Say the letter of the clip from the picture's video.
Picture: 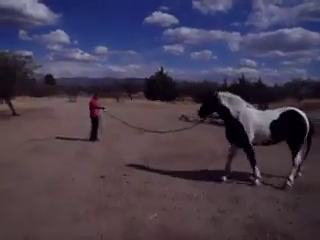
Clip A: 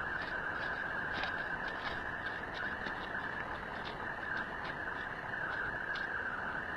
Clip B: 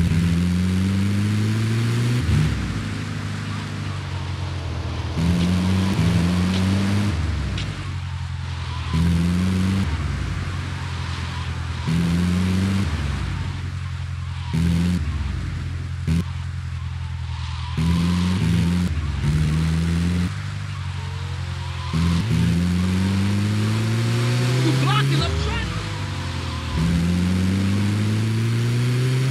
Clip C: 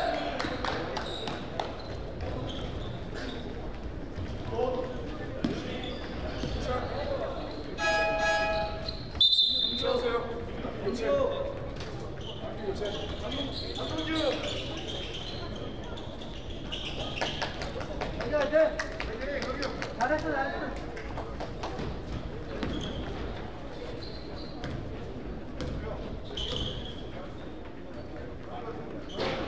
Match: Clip A